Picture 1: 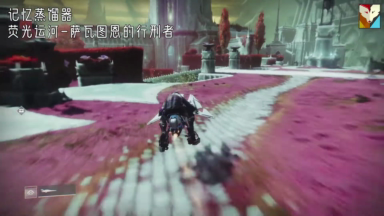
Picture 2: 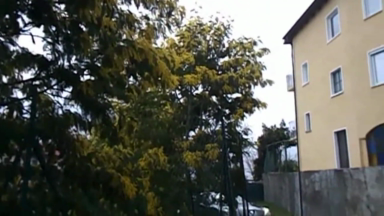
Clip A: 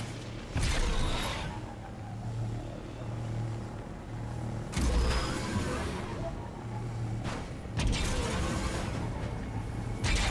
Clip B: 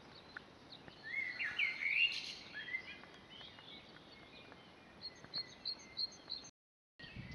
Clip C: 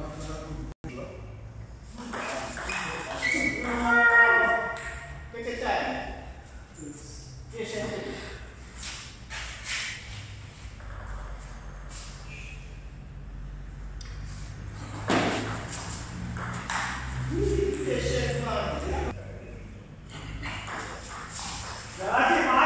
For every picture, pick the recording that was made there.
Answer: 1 A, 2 B